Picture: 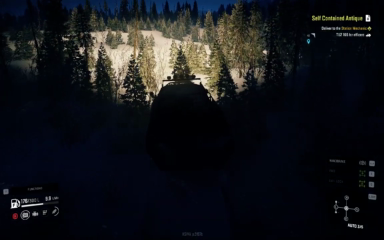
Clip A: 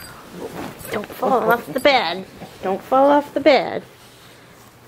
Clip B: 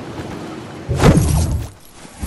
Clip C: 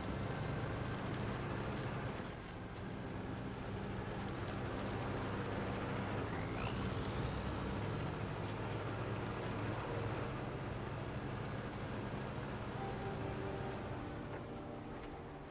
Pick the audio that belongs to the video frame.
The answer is C